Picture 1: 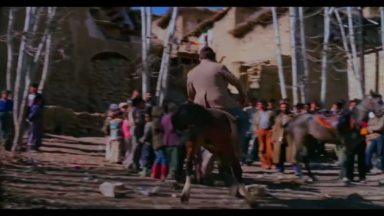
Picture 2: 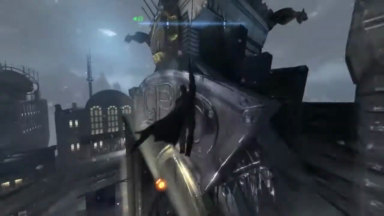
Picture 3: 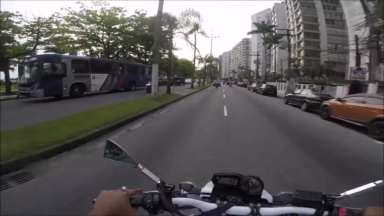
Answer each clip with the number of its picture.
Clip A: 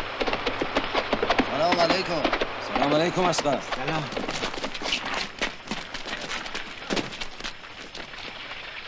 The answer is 1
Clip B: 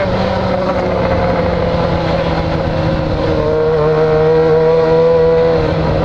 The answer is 3